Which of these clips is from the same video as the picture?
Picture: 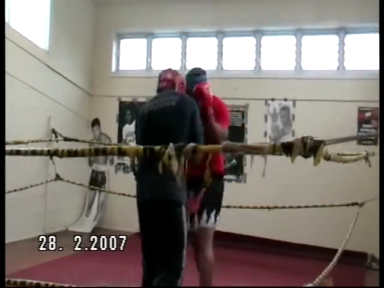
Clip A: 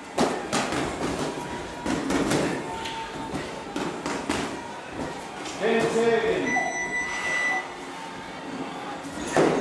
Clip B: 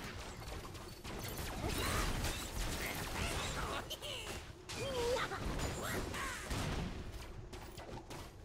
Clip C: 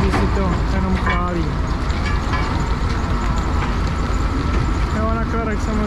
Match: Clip A